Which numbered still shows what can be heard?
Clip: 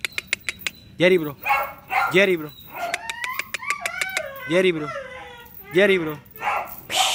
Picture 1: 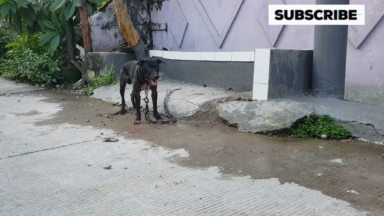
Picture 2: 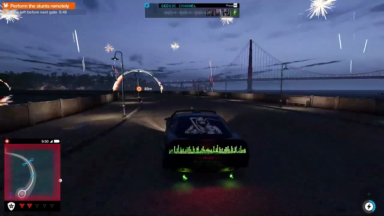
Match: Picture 1